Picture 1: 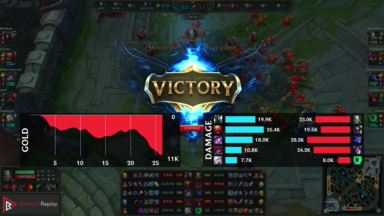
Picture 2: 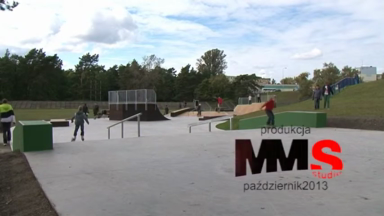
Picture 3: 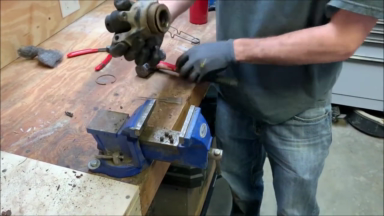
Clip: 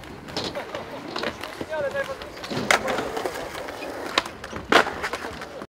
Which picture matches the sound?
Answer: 2